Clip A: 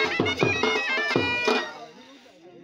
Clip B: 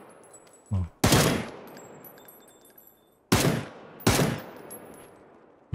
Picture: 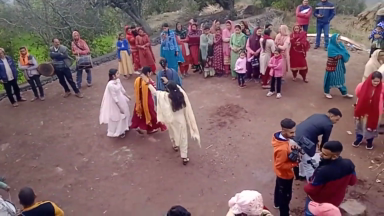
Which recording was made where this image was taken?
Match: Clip A